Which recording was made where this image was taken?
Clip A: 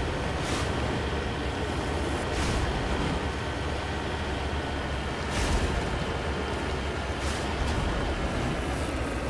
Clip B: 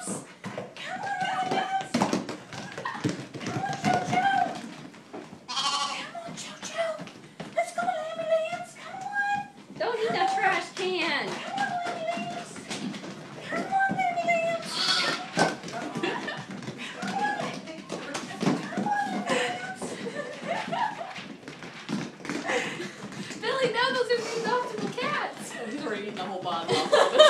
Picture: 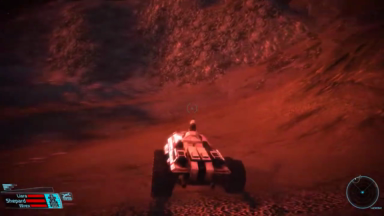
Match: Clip A